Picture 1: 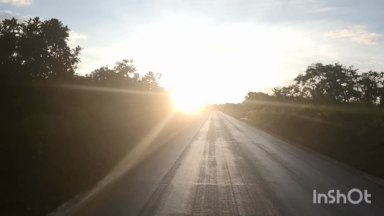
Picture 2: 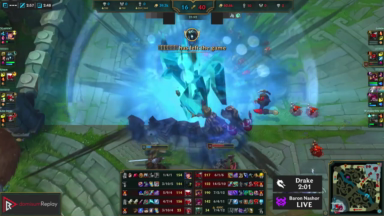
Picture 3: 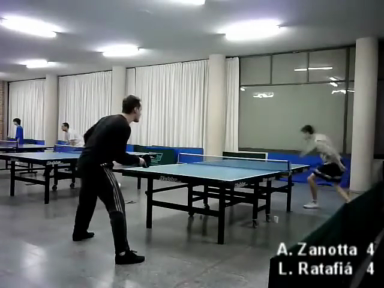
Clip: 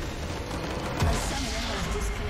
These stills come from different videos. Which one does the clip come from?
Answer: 2